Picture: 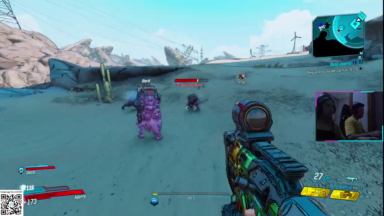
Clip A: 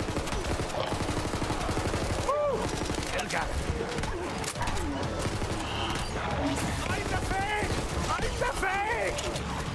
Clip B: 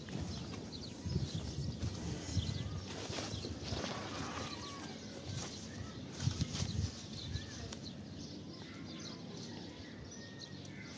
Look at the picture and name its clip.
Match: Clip A